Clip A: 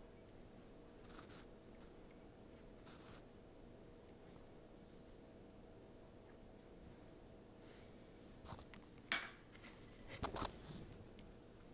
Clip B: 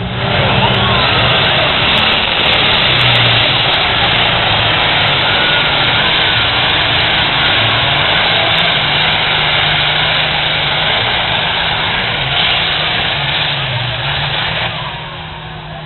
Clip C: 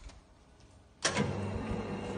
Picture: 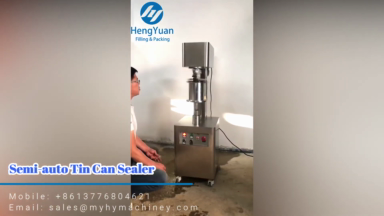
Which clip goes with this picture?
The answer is C